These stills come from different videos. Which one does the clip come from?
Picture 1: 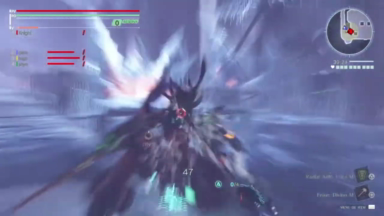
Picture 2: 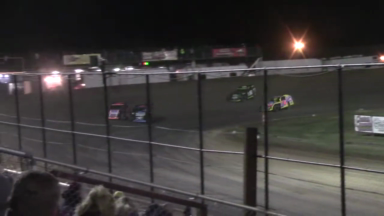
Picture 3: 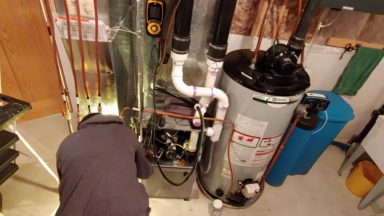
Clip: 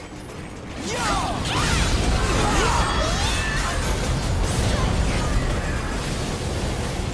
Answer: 1